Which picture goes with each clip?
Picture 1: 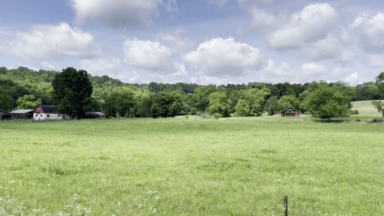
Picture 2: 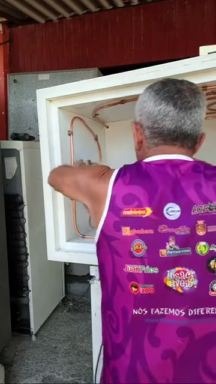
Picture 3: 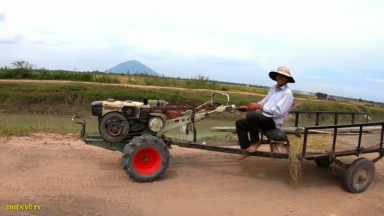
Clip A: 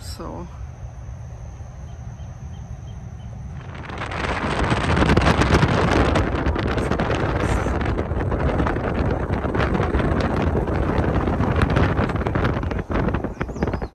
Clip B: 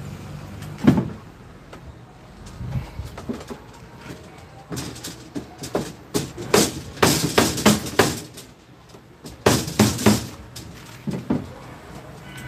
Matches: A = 1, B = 2